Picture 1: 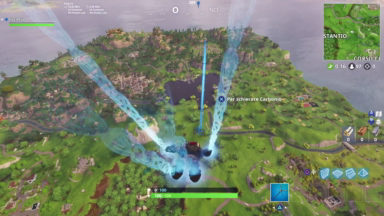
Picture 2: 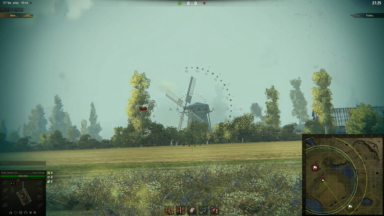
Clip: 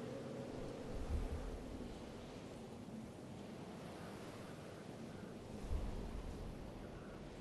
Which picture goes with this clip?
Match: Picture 1